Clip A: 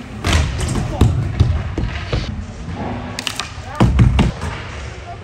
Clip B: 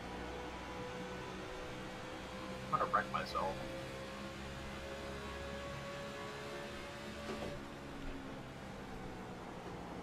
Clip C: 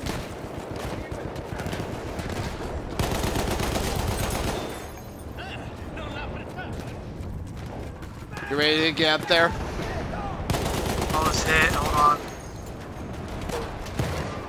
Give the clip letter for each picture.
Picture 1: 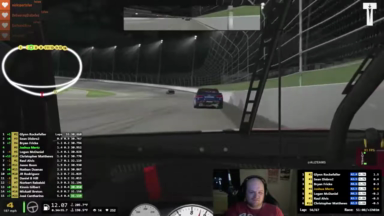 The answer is B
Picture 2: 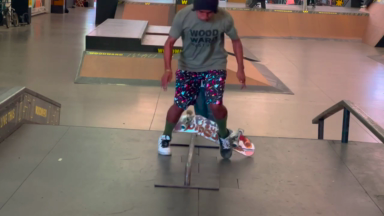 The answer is A